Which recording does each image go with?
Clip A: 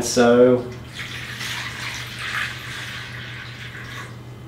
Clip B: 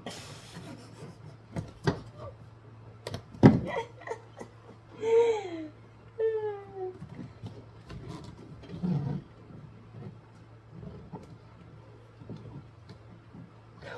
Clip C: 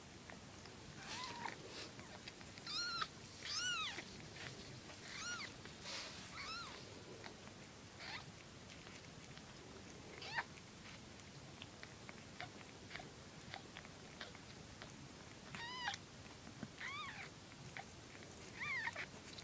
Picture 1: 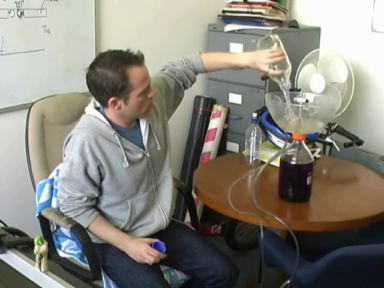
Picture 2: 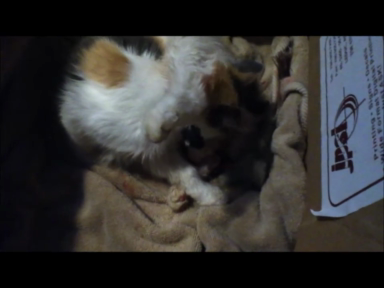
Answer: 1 A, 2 C